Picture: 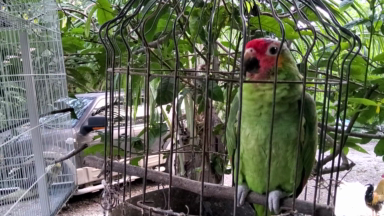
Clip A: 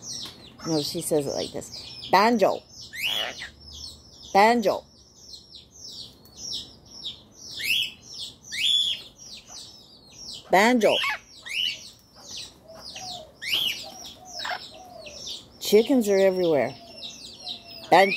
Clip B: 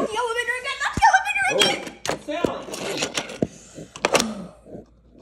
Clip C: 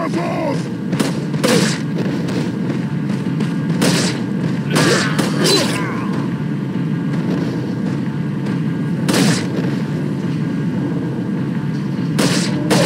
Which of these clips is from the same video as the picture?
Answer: A